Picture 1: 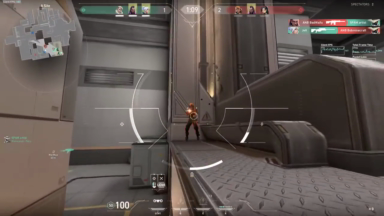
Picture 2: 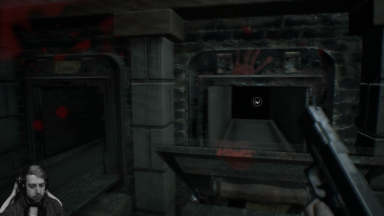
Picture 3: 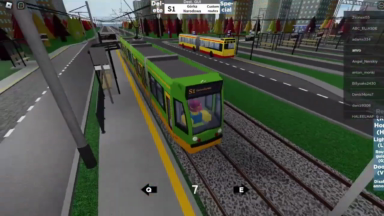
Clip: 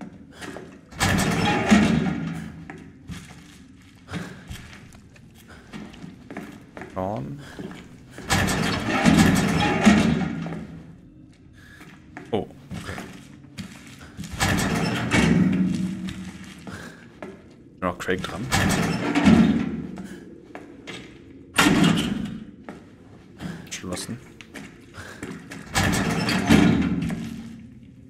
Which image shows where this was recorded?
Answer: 2